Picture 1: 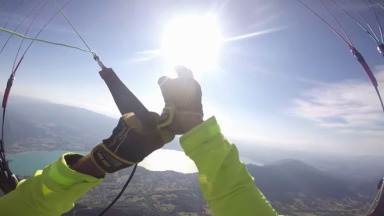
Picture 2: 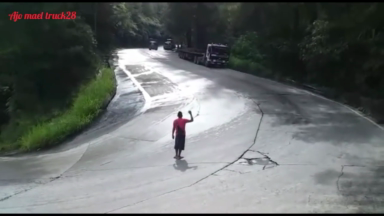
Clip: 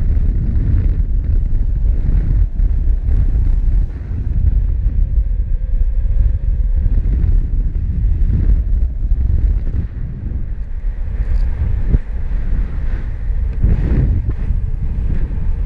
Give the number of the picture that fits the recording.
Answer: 1